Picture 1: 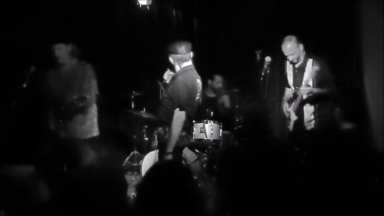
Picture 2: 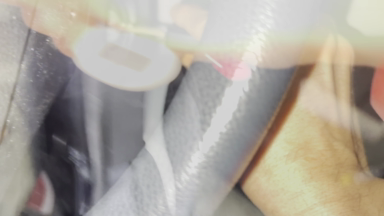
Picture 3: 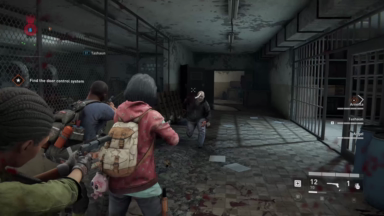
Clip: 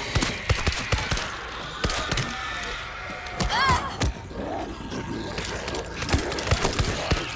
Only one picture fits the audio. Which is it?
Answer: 3